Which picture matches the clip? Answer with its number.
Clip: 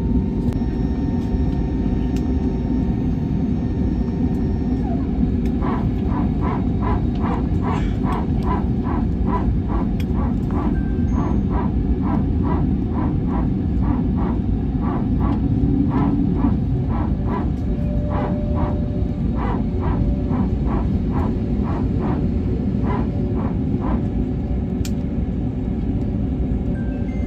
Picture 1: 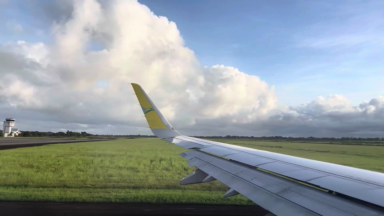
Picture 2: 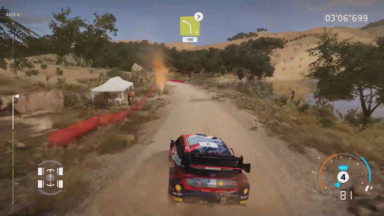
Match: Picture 1